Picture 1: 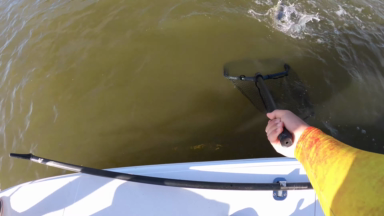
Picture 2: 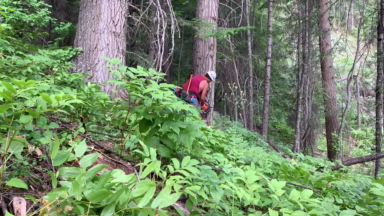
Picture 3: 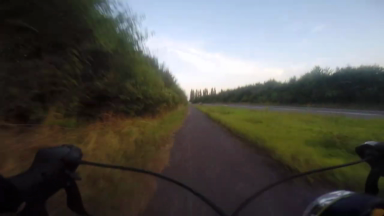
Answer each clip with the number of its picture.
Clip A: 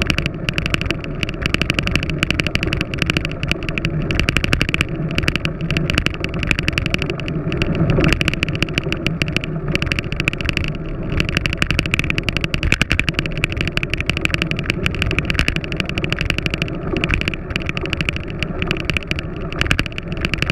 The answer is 3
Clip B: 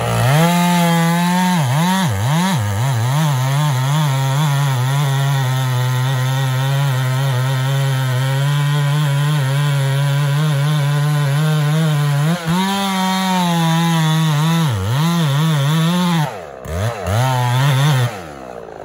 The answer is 2